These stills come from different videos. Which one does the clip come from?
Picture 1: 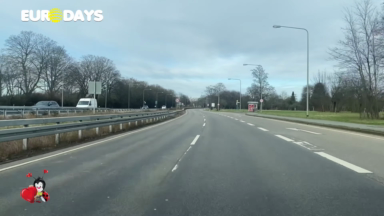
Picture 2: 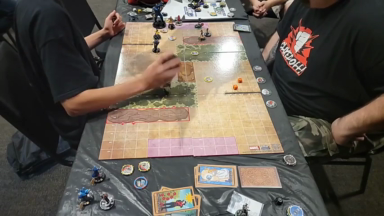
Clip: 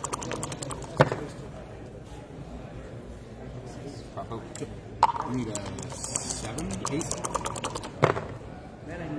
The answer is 2